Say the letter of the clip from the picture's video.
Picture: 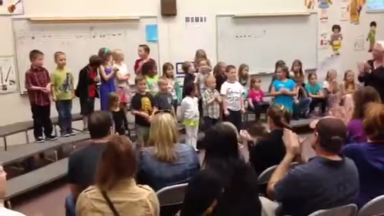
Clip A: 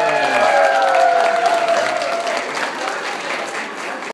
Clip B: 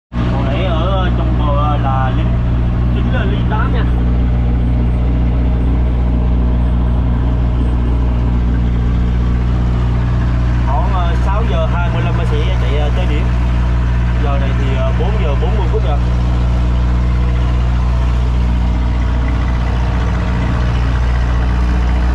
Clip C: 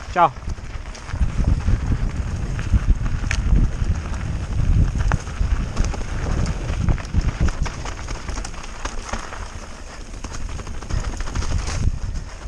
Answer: A